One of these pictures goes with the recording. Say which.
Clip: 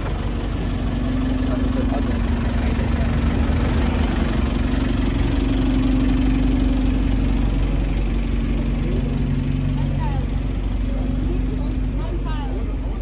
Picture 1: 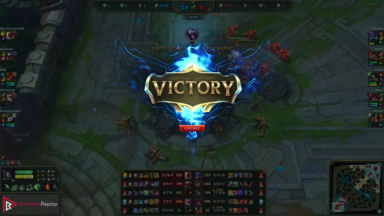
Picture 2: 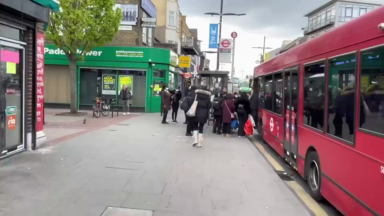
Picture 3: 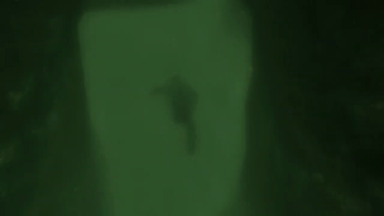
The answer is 2